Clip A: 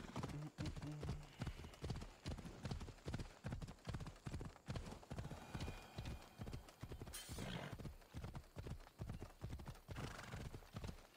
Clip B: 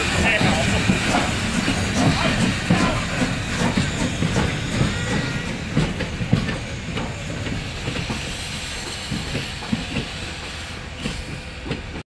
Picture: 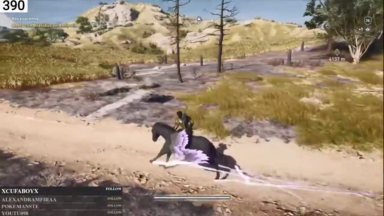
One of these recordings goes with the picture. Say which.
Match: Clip A